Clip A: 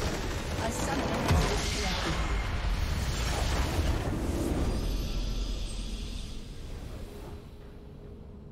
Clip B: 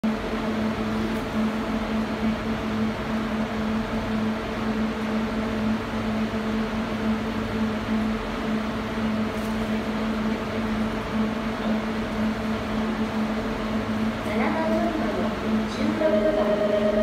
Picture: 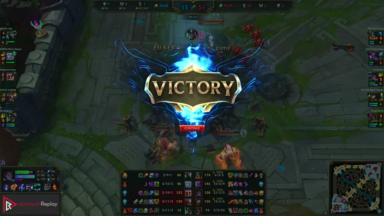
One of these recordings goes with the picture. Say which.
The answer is A